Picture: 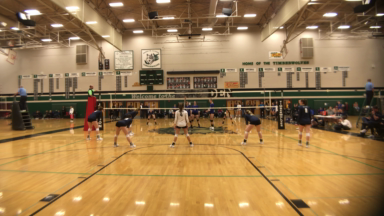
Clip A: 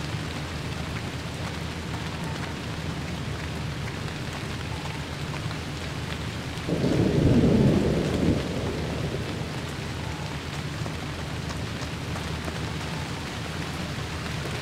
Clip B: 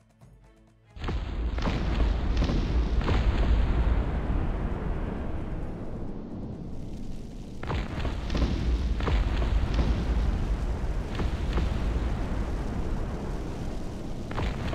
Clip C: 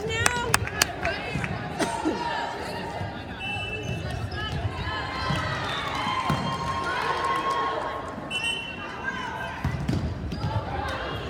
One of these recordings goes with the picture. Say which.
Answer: C